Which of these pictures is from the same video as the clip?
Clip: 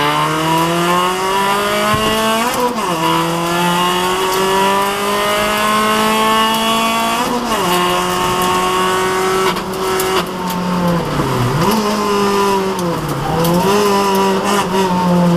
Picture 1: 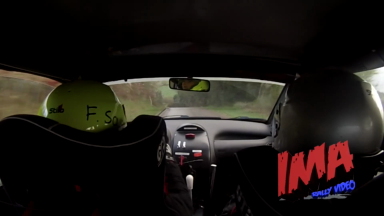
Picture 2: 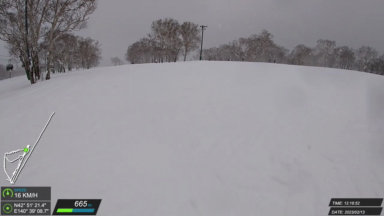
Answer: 1